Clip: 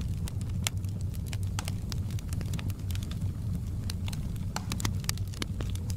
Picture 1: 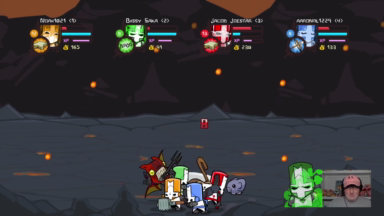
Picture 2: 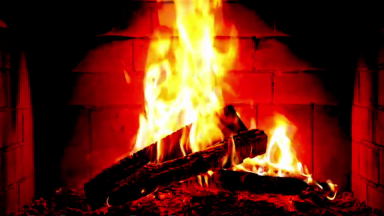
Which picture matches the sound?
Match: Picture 2